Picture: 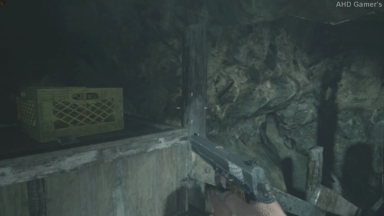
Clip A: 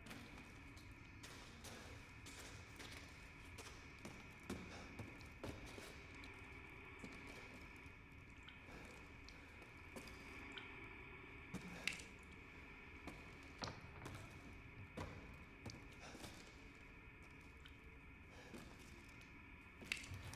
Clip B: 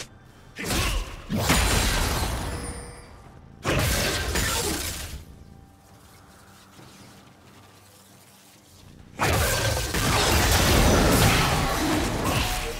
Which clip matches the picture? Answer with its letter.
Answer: A